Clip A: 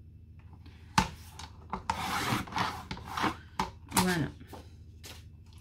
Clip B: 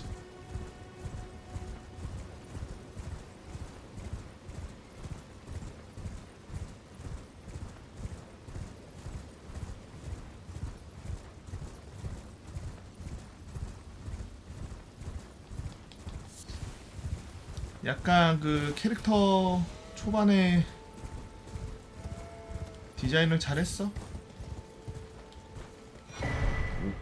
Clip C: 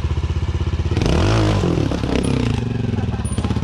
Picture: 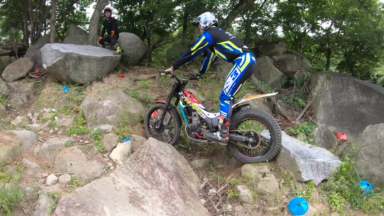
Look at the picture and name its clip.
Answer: C